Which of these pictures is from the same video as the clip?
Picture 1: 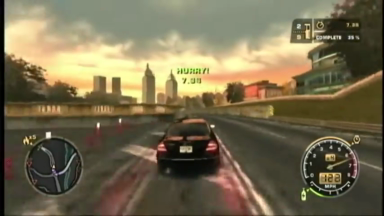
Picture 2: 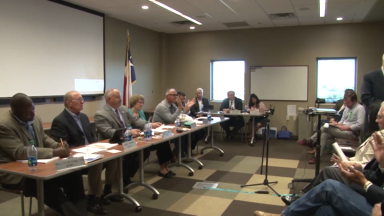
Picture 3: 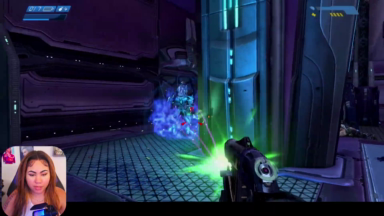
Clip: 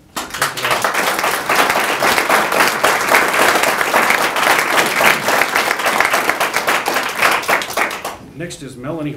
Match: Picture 2